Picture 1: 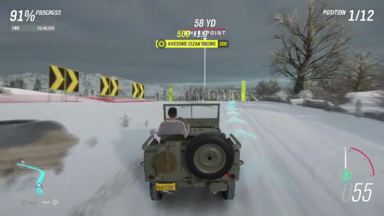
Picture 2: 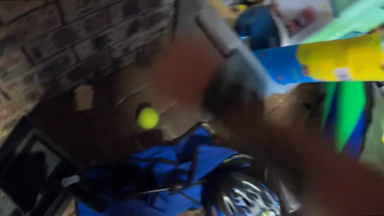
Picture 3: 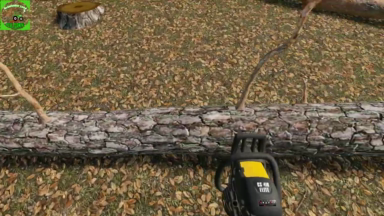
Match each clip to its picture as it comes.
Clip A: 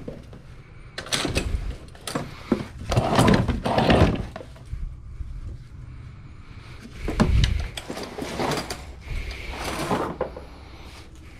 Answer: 2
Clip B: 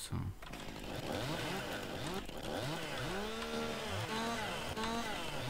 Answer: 3